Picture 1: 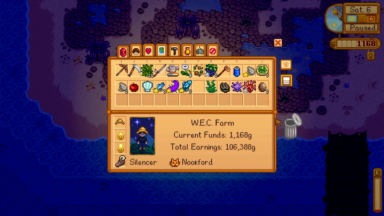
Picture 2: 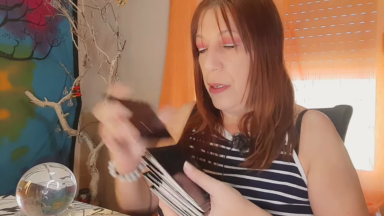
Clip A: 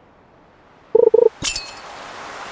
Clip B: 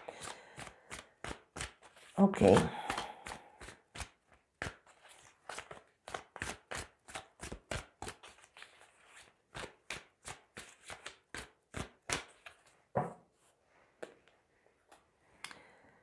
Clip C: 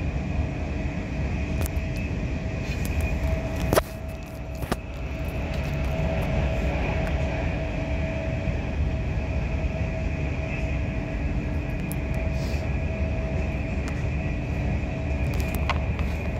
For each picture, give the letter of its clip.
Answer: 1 A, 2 B